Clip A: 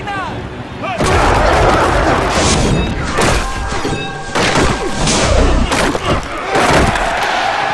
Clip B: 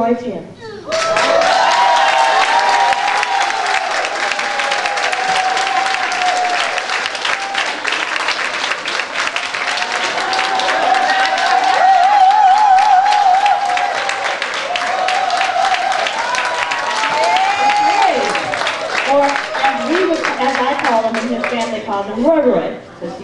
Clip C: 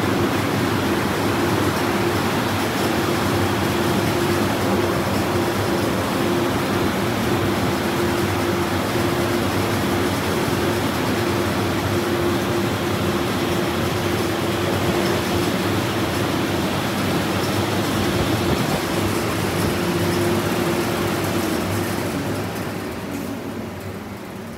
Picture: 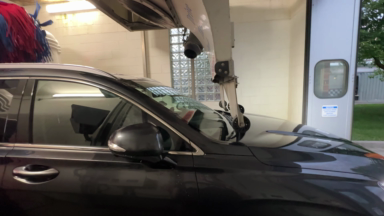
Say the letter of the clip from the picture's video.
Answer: C